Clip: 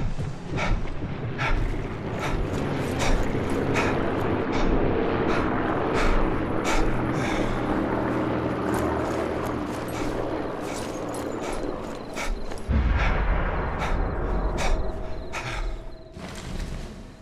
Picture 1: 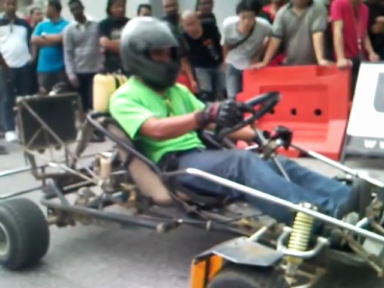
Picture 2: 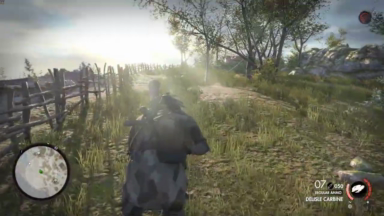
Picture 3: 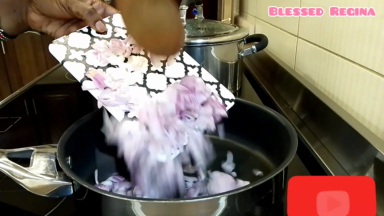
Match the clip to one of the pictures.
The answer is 2